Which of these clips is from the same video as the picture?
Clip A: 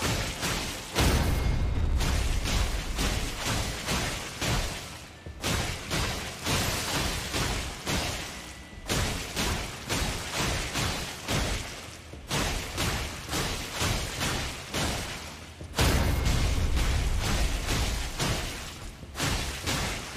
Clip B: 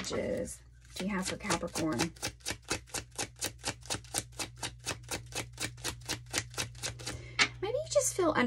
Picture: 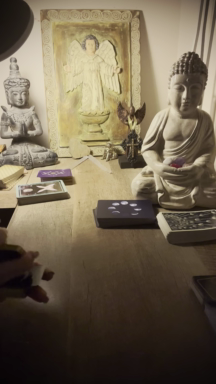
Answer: B